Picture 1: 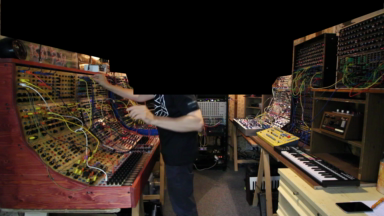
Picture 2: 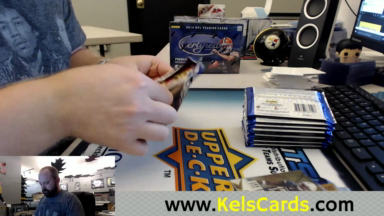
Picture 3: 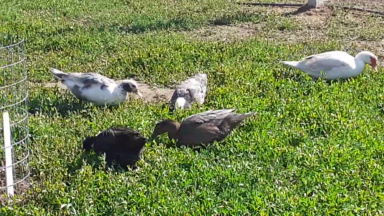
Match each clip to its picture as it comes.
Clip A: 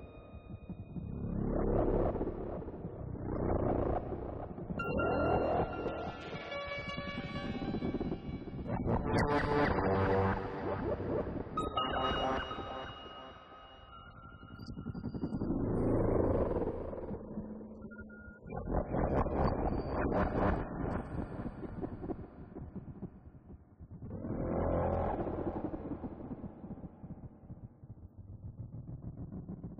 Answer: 1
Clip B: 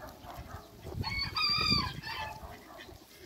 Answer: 3